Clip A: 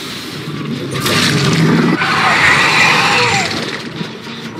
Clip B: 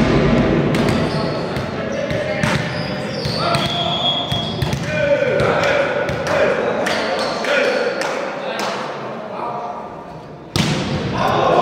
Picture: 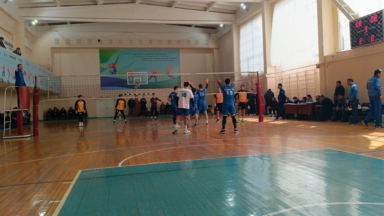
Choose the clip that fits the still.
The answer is B